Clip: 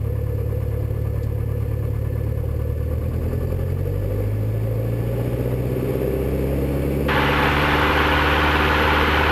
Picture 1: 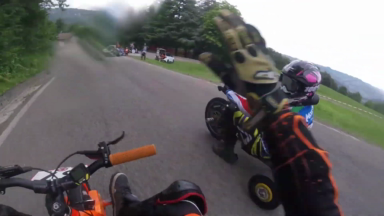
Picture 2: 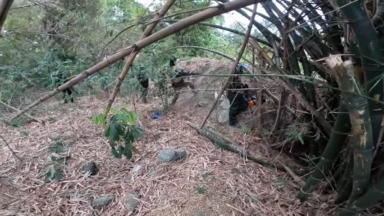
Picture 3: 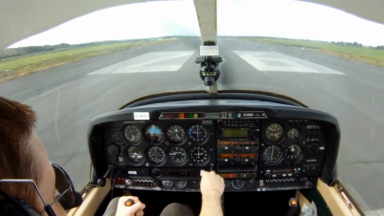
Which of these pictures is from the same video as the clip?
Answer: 3